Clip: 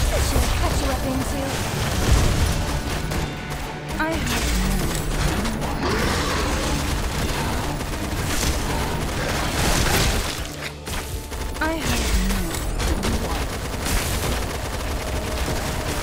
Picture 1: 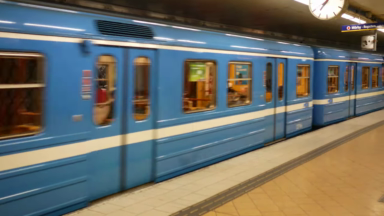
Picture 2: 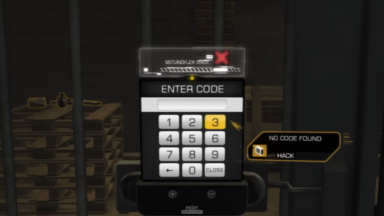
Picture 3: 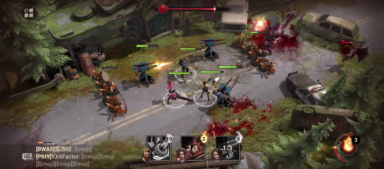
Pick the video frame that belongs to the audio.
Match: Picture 3